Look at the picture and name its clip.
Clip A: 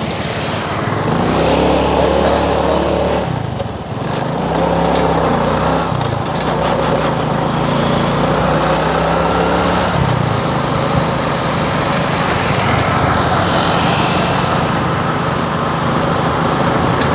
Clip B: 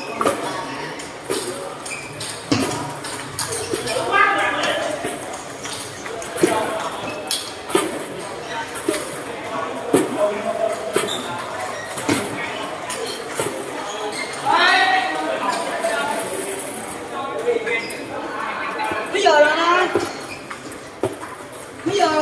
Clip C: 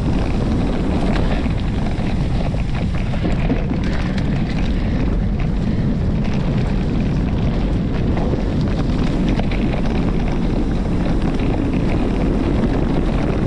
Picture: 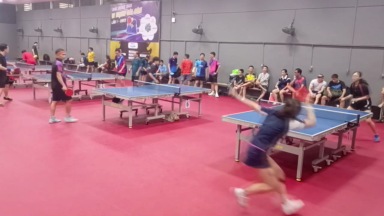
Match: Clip B